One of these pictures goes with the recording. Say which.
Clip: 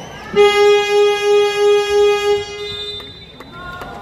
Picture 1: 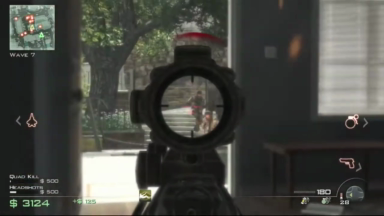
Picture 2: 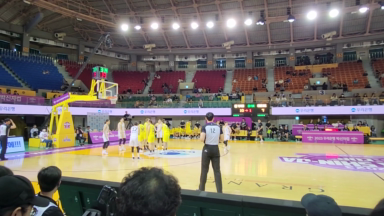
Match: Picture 2